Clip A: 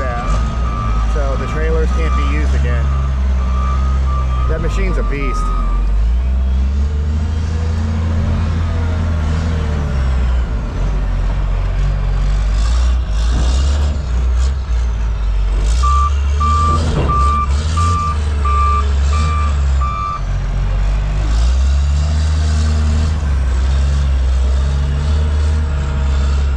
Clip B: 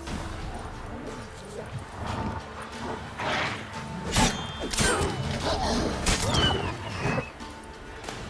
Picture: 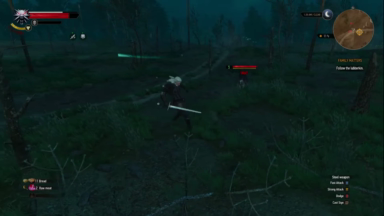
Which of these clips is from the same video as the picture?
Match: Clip B